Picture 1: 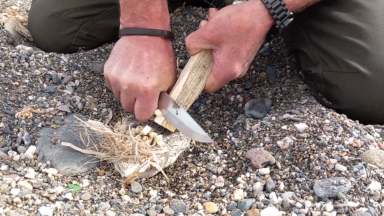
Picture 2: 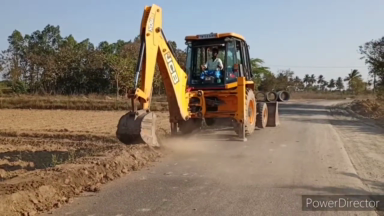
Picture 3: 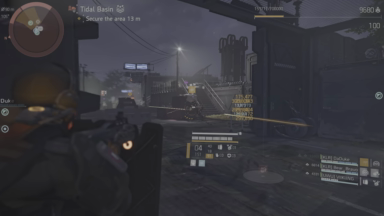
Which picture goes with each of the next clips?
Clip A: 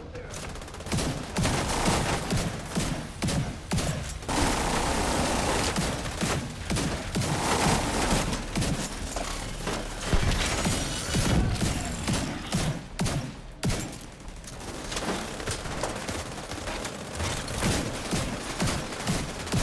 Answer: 3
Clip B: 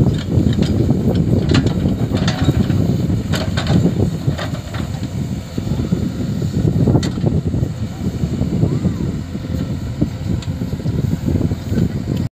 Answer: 2